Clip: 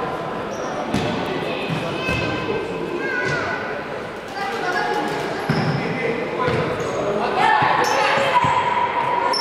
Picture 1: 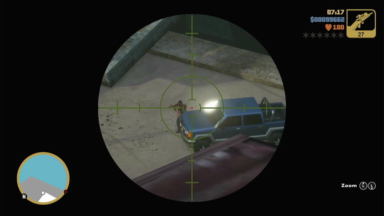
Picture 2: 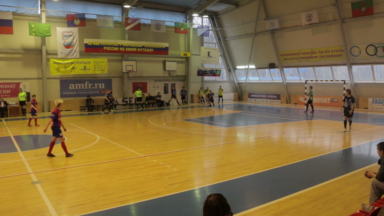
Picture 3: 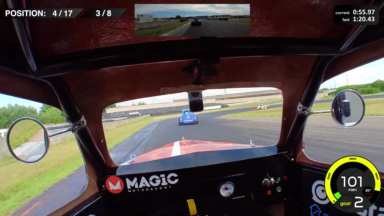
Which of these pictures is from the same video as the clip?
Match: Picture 2